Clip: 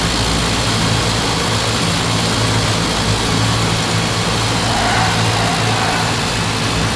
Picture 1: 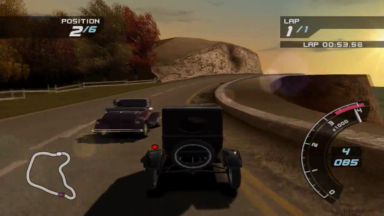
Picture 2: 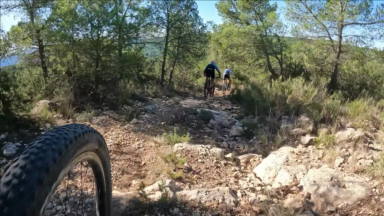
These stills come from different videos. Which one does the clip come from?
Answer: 1